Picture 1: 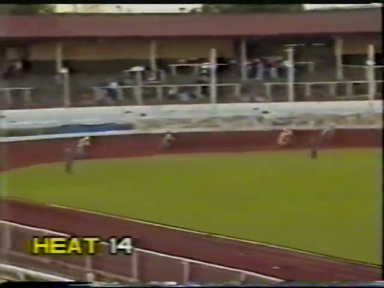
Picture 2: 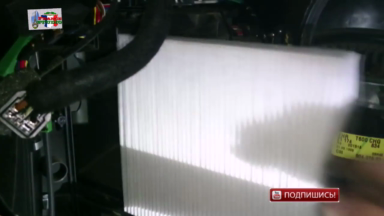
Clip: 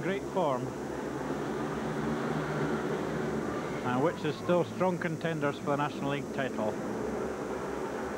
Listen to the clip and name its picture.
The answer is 1